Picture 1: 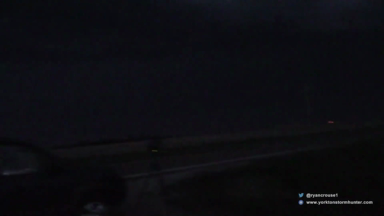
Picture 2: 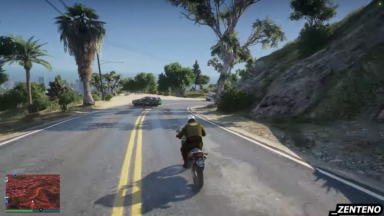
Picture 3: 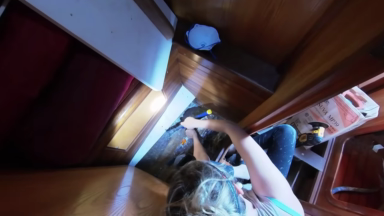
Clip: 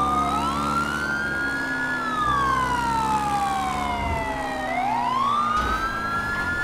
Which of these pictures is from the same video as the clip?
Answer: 2